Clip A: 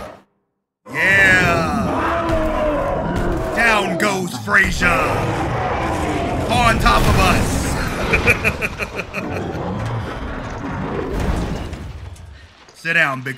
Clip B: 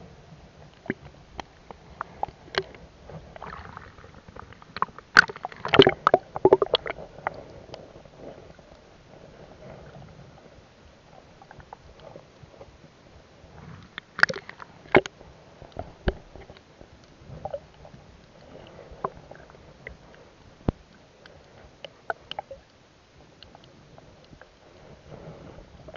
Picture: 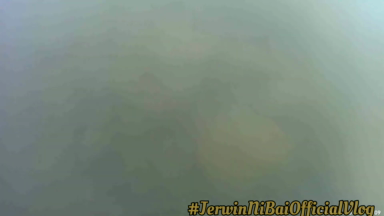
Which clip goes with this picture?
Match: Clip B